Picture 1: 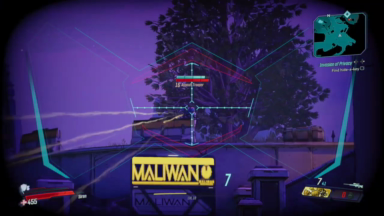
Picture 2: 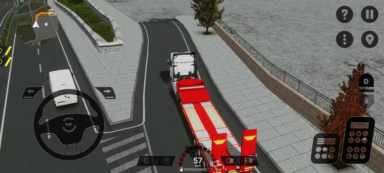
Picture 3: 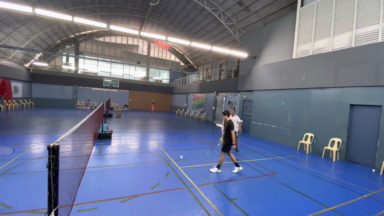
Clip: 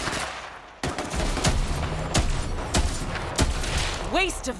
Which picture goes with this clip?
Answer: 1